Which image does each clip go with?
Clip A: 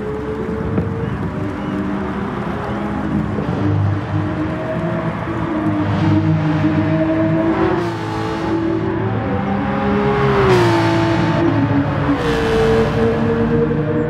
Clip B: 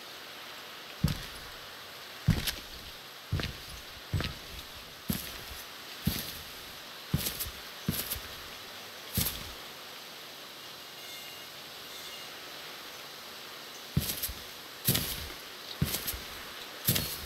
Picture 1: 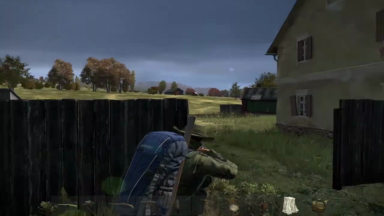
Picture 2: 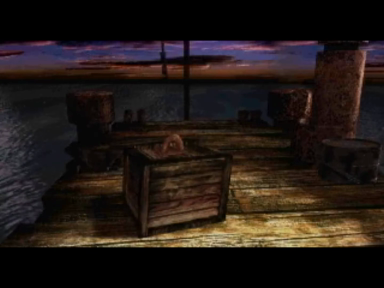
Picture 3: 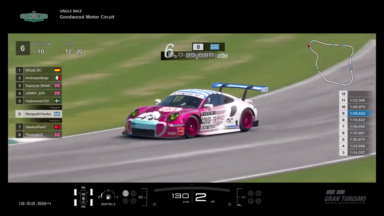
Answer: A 3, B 1